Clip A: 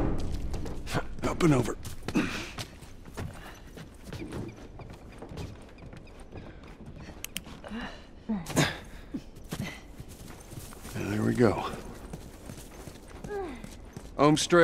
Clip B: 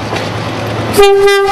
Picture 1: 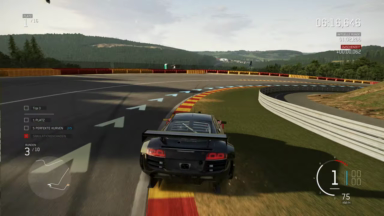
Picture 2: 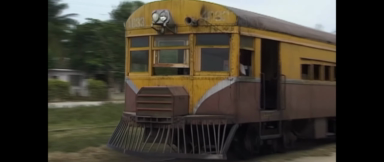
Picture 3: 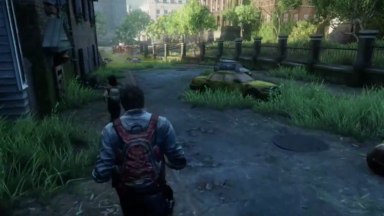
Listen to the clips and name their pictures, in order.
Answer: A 3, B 2